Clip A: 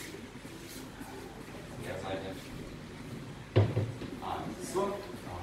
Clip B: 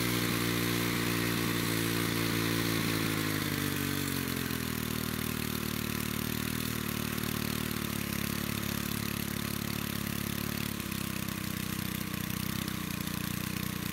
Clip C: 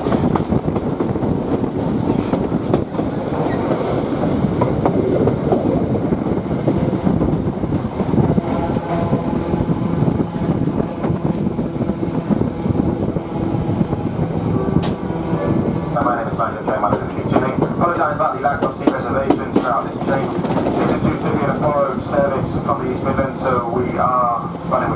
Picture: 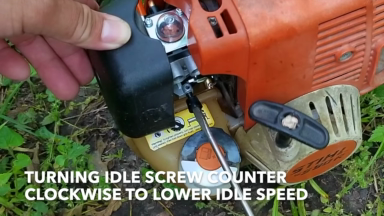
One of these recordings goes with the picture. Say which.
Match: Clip B